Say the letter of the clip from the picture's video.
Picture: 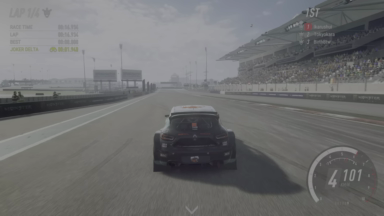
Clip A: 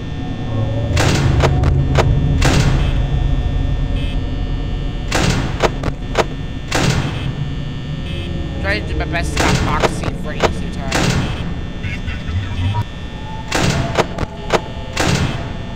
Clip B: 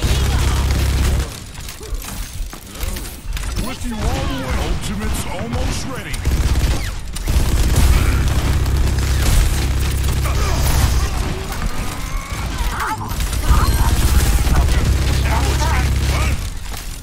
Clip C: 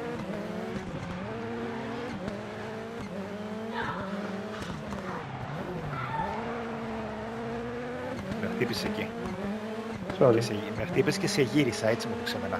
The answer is C